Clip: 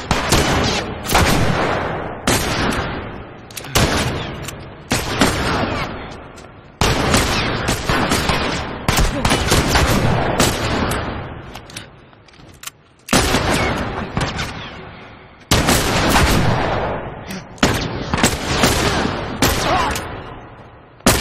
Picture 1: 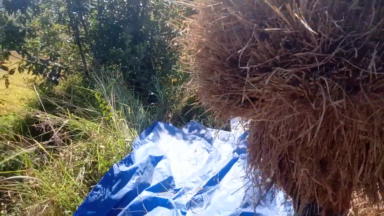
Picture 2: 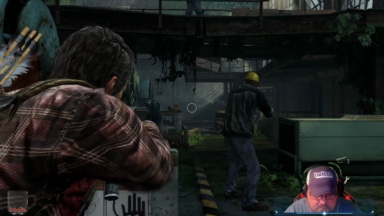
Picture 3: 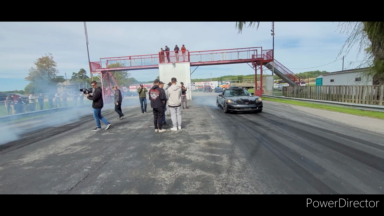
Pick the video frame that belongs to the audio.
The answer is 2